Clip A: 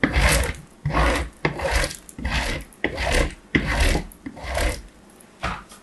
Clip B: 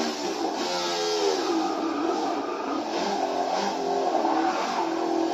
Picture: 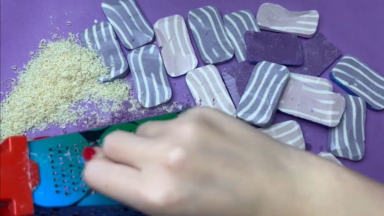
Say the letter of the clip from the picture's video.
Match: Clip A